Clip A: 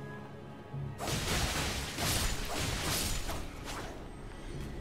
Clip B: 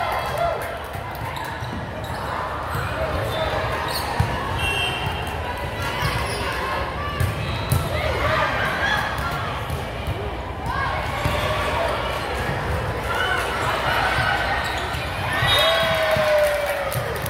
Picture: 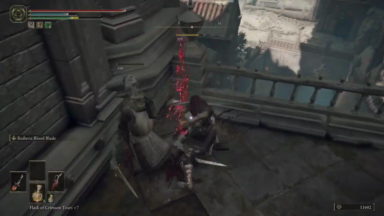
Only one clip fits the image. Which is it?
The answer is A